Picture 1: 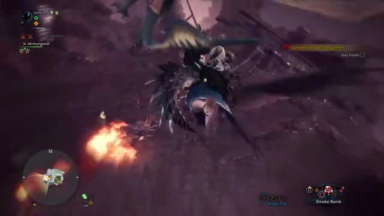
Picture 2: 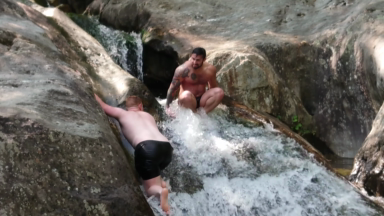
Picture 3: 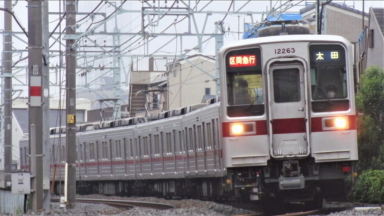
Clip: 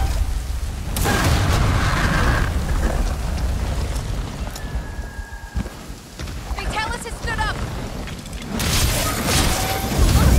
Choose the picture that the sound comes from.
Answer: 1